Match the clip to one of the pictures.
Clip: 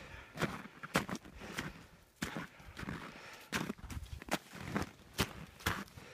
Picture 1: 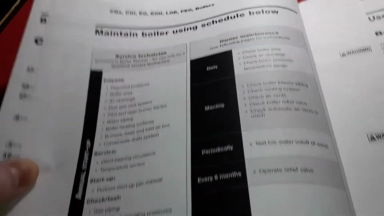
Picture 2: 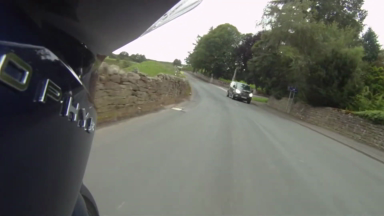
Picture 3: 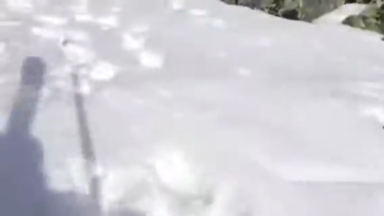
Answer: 3